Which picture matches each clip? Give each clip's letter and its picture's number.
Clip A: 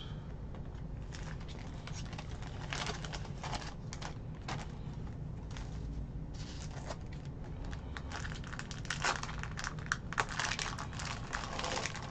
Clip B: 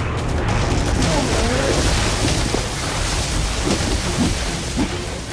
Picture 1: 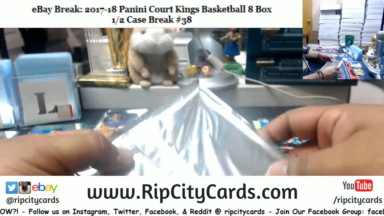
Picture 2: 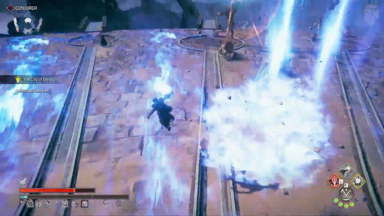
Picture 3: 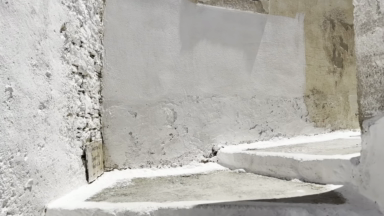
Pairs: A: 1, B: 2